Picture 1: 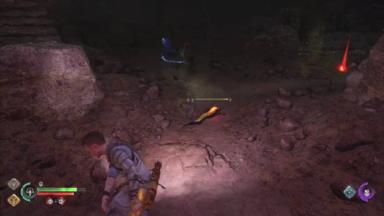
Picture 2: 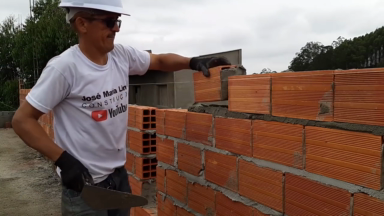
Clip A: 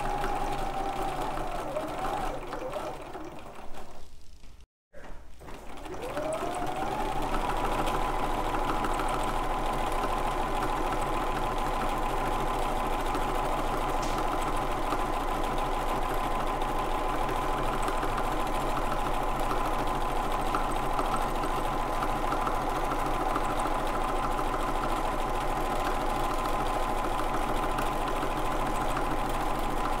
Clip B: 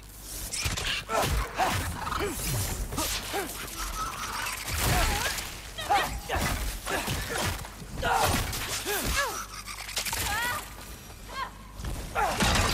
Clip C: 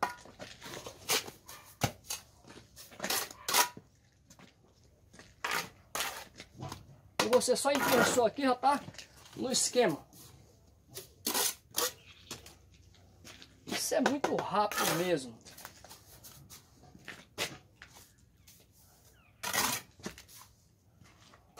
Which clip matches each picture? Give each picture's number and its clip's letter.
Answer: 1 B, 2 C